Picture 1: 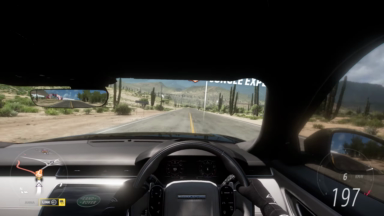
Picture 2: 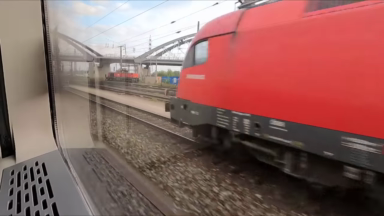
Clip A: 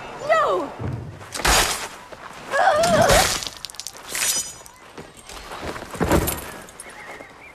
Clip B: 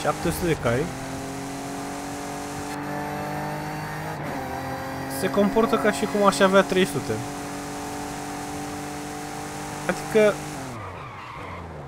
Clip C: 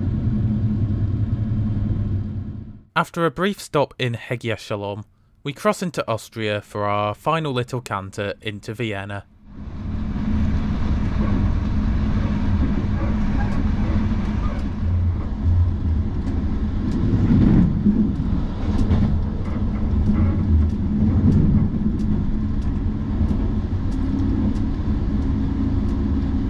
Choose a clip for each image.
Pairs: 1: B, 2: C